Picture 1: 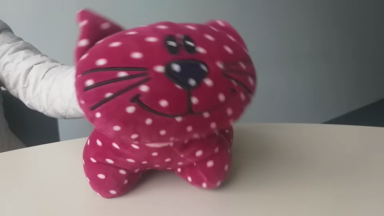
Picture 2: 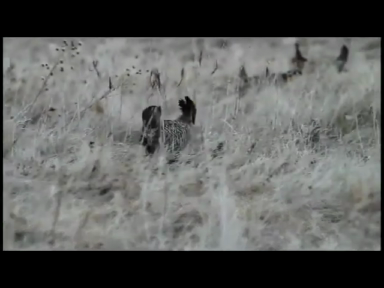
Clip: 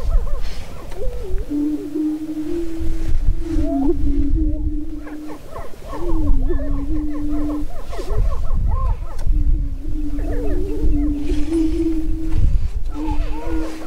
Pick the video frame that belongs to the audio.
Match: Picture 2